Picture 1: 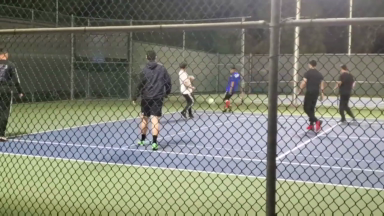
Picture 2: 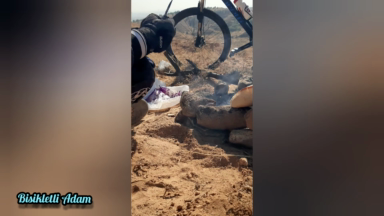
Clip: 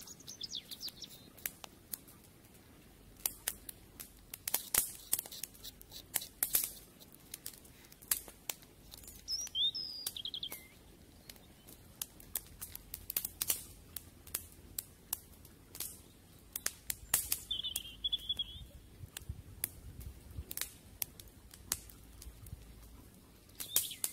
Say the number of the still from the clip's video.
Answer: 2